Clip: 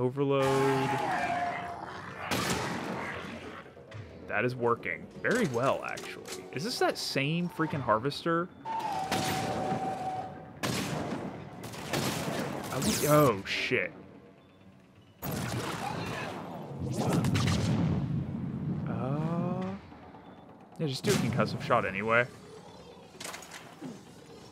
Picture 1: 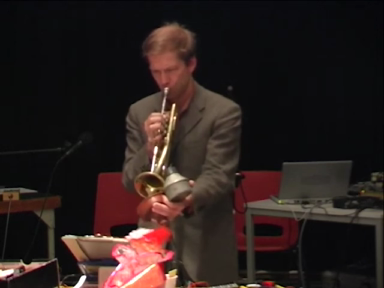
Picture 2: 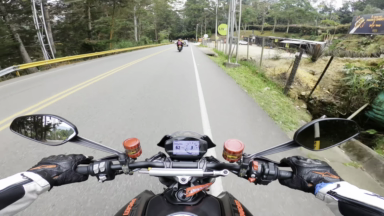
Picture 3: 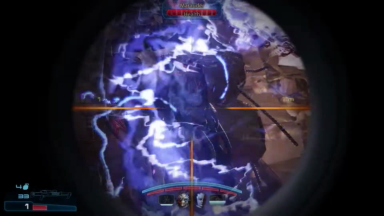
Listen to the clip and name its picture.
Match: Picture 3